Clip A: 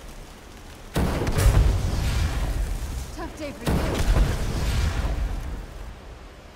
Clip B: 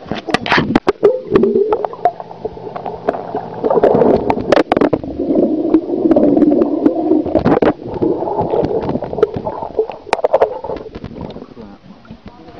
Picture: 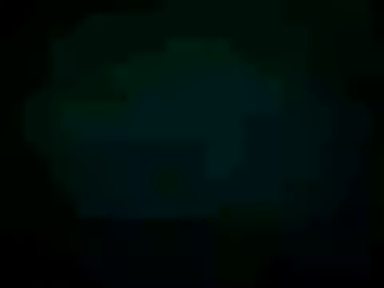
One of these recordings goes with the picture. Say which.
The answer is B